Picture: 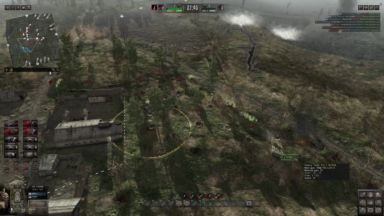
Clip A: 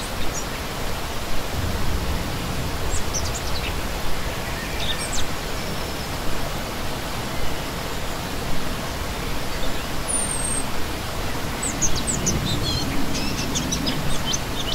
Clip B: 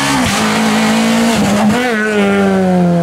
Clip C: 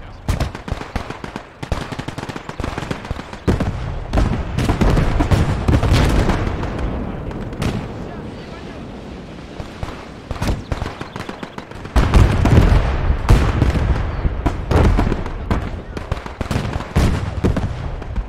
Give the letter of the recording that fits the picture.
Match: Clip C